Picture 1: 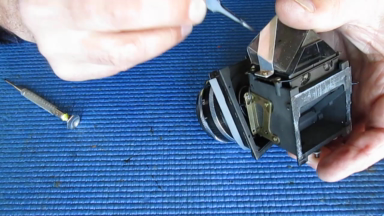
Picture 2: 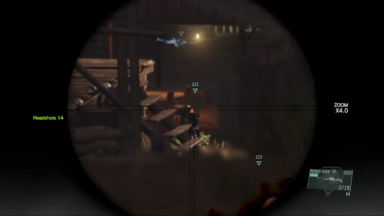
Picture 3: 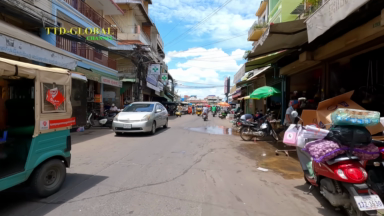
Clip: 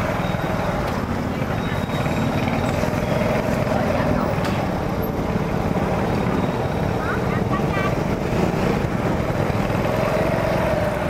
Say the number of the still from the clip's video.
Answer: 3